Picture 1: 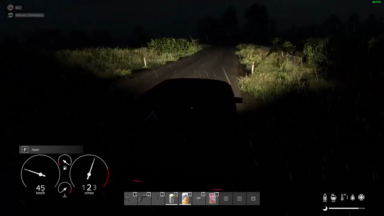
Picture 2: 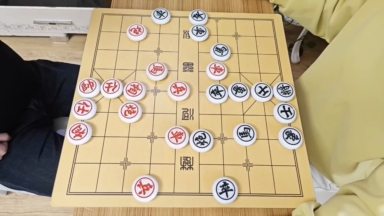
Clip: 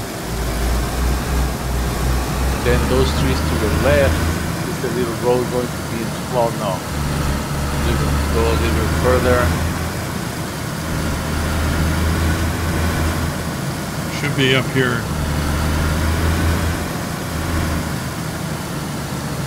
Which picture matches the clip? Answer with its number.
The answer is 1